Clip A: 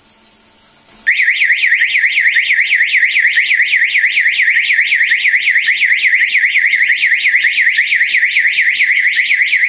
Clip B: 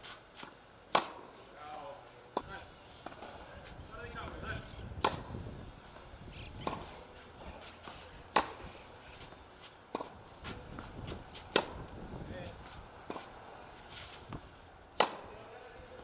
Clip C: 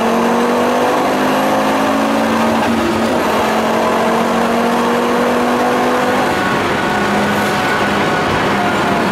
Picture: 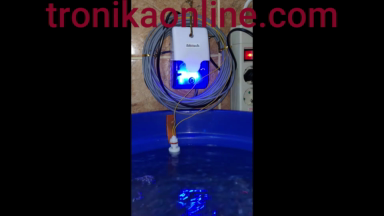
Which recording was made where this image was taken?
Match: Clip A